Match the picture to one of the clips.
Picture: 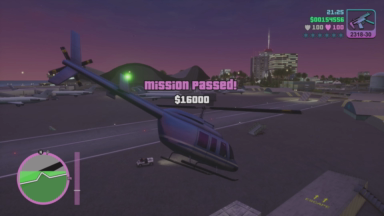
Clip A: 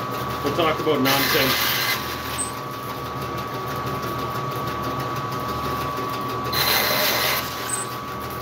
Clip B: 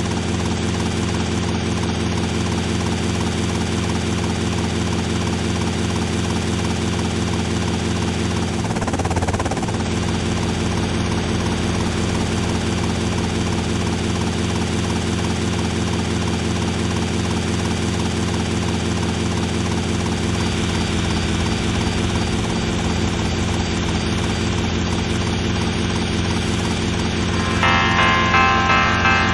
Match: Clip B